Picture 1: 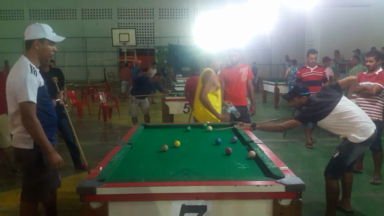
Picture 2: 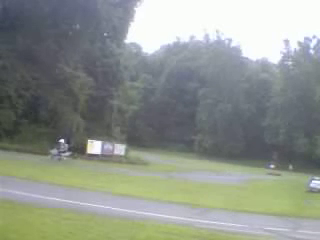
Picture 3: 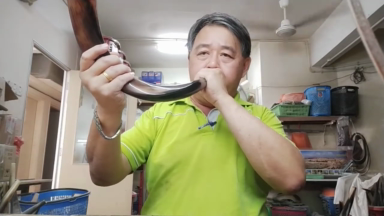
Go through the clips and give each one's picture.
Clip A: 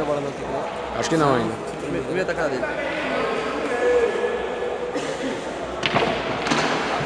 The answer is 1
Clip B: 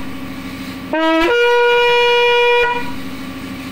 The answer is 3